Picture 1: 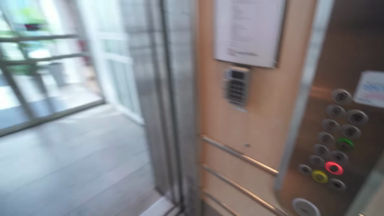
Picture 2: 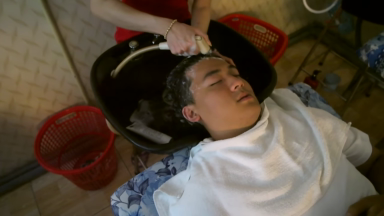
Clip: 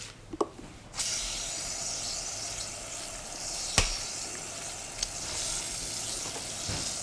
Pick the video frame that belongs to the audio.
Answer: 2